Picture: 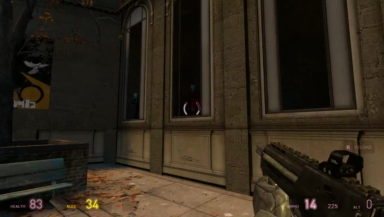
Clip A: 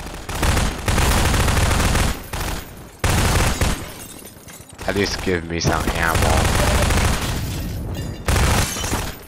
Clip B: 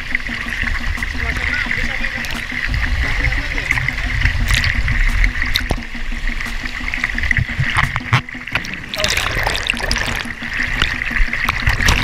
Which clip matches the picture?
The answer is A